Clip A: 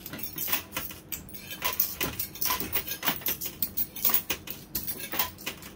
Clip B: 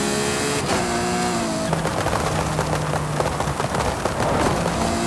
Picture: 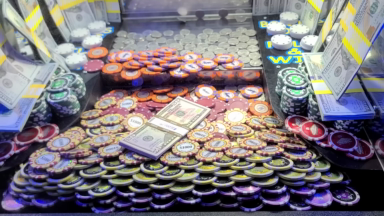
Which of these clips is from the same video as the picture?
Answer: A